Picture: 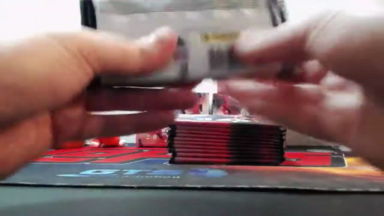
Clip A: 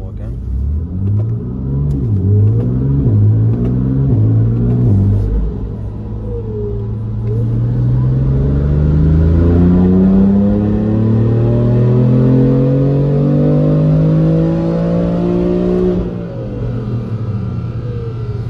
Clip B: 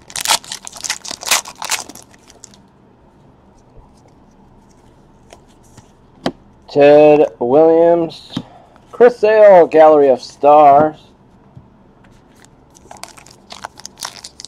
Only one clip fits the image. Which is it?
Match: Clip B